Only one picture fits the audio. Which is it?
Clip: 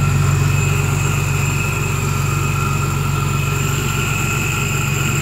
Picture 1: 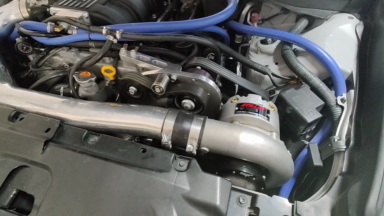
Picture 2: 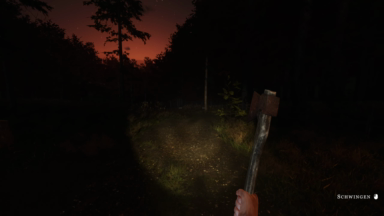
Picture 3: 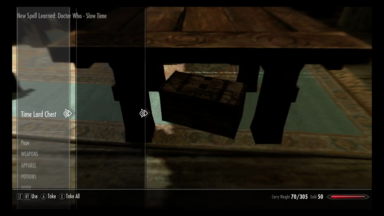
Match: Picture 1